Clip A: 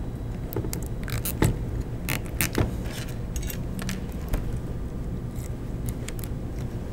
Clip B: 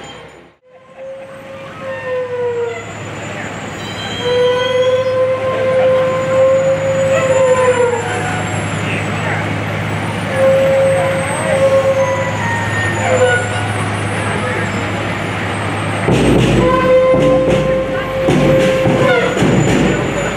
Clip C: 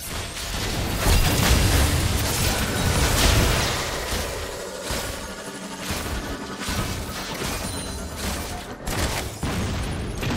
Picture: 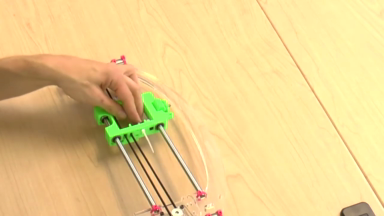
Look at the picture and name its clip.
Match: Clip A